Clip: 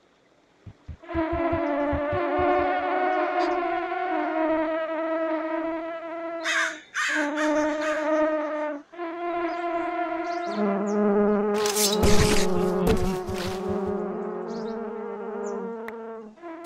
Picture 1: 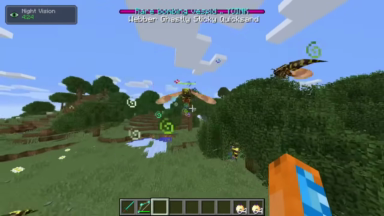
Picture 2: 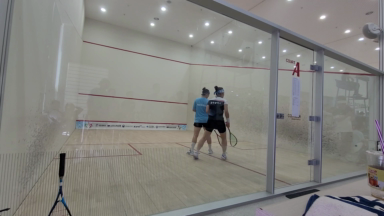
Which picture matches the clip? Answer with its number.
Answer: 1